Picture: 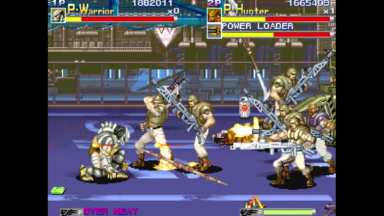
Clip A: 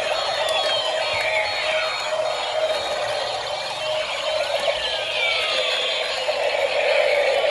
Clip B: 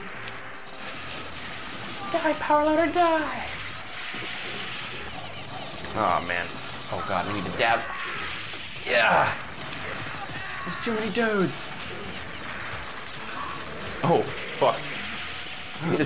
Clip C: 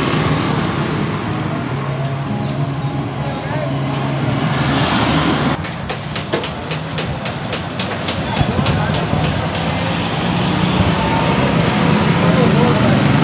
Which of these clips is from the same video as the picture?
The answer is B